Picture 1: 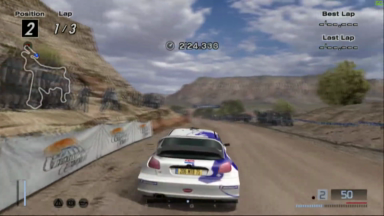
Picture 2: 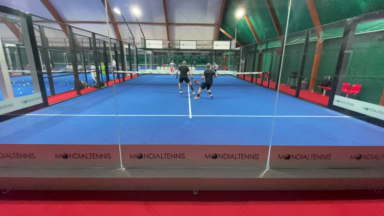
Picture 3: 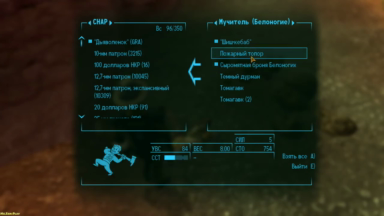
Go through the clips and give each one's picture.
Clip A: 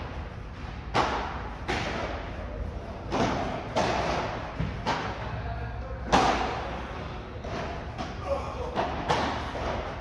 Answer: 2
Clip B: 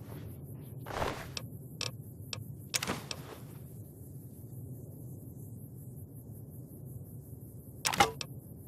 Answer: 3